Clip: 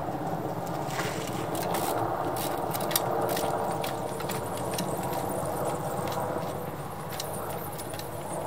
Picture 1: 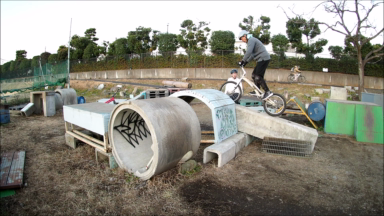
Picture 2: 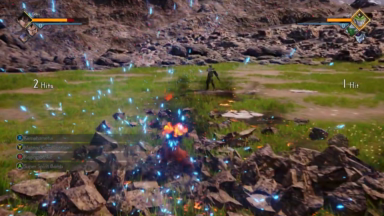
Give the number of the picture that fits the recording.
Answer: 1